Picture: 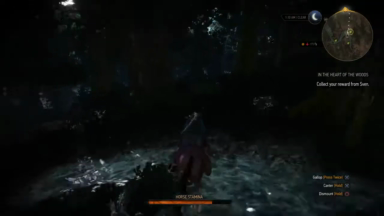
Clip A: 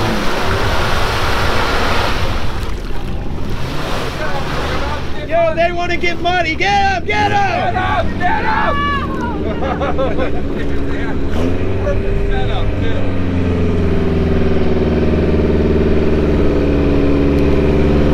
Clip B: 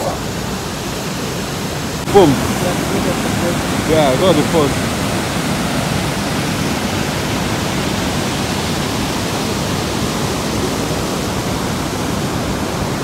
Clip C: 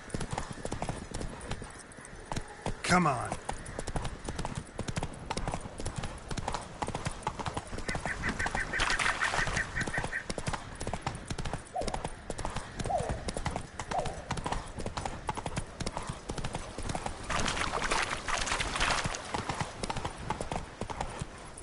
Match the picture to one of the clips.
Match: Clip C